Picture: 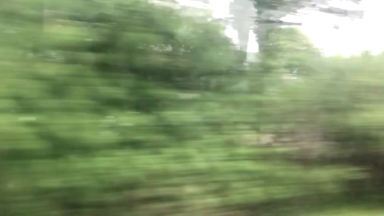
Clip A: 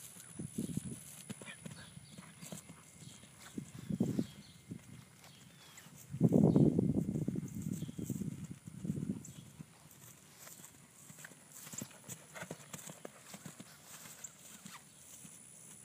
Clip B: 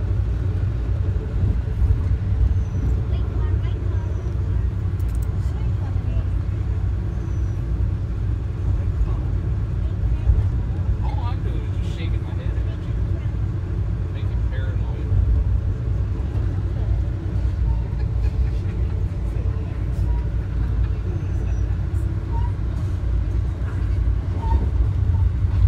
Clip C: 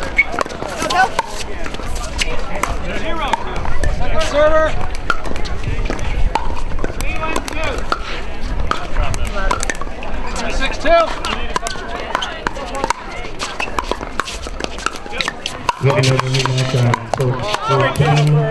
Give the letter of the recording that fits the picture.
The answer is B